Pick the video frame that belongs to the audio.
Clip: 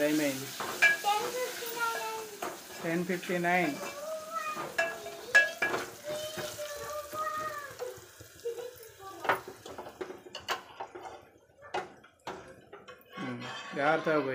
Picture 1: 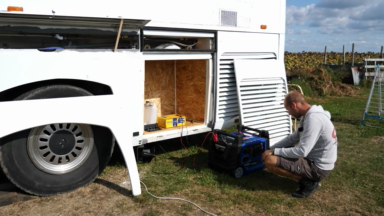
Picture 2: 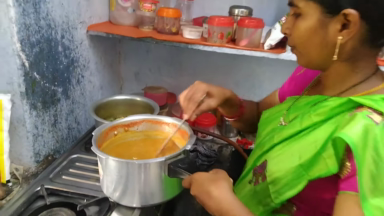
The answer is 2